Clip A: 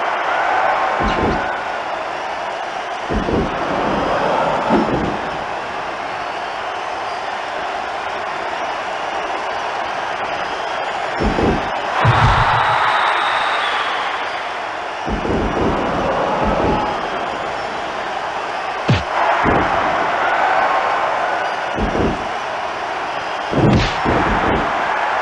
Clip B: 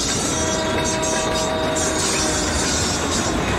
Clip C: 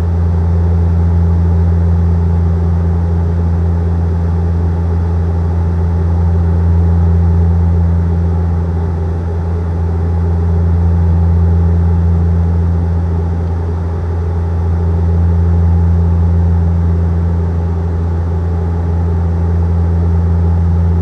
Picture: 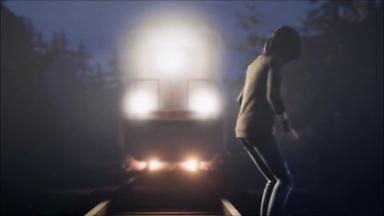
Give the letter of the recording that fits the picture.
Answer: B